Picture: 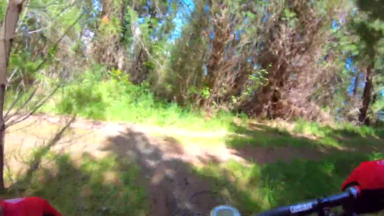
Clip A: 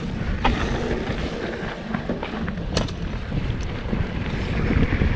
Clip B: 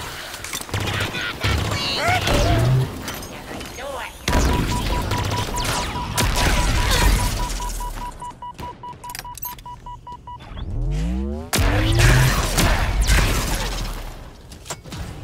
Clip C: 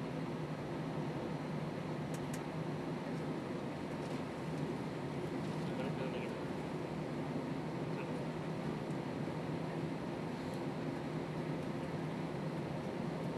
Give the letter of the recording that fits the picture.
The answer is A